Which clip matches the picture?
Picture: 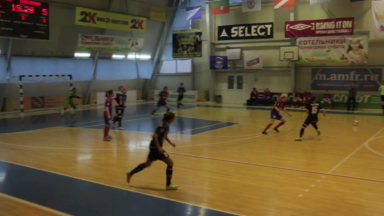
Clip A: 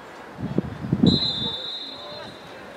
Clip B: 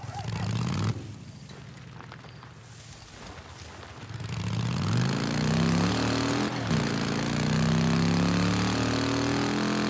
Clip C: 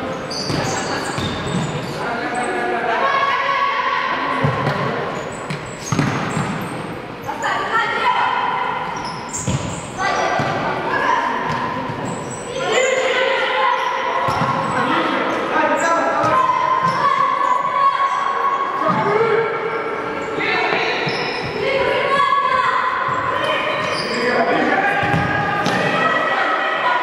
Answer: C